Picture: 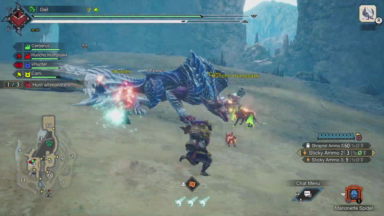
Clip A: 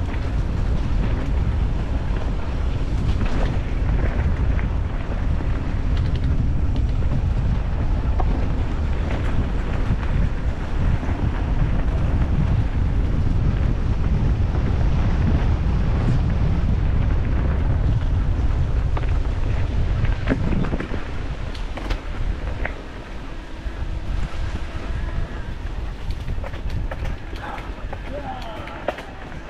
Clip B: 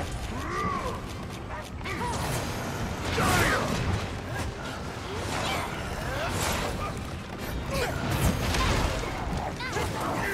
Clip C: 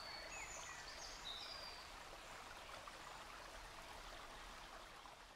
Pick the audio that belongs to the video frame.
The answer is B